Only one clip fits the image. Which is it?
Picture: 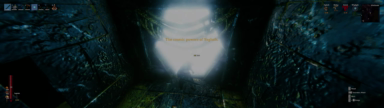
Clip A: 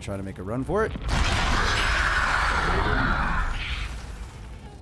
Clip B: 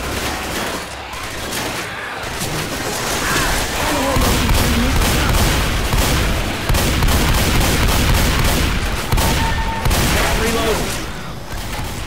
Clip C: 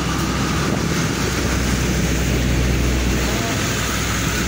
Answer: A